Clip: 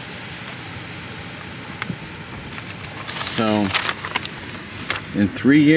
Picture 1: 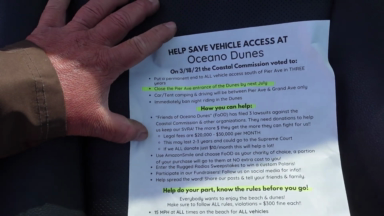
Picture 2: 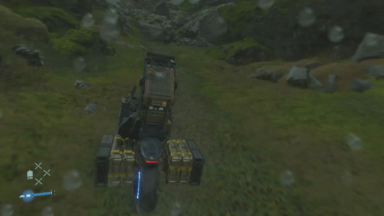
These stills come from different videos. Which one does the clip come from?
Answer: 1